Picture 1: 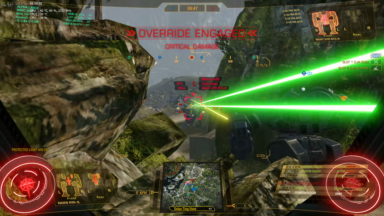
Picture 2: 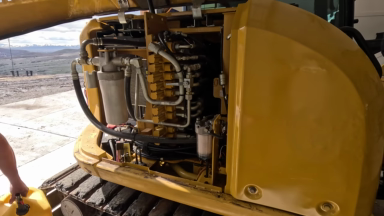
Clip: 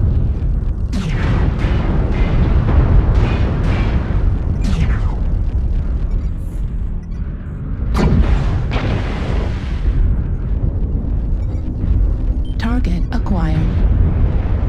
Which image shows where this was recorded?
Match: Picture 1